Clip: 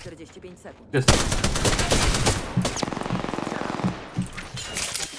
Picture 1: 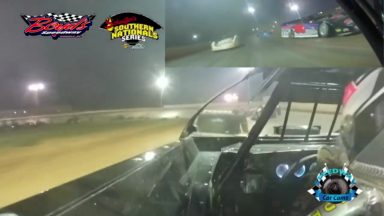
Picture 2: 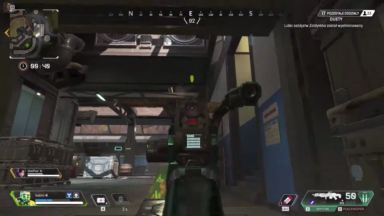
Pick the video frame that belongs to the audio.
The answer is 2